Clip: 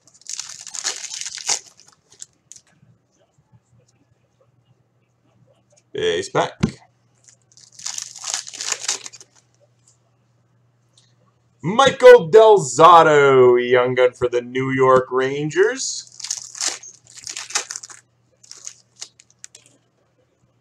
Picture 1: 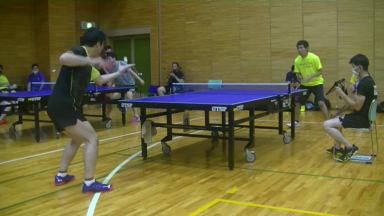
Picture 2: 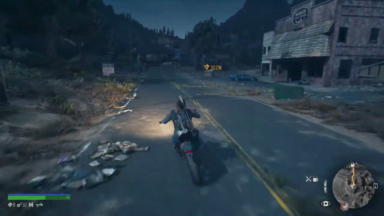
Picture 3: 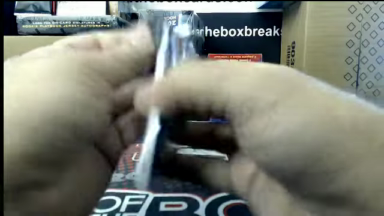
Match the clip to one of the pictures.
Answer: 3